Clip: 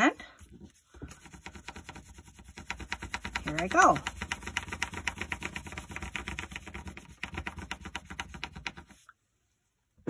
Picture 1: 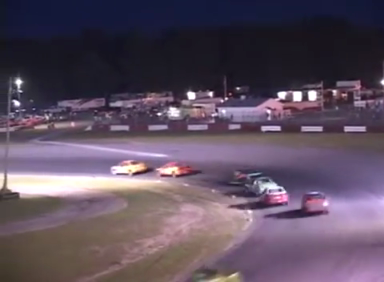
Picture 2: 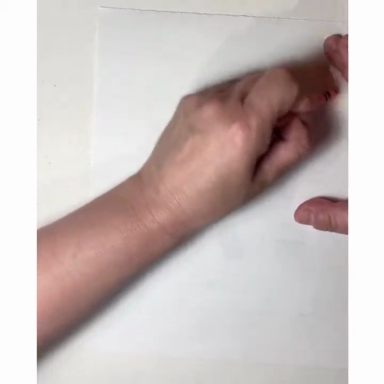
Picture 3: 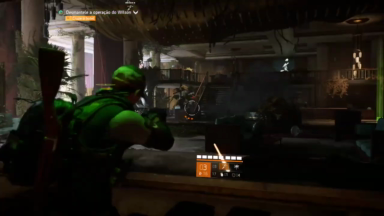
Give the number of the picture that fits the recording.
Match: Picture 2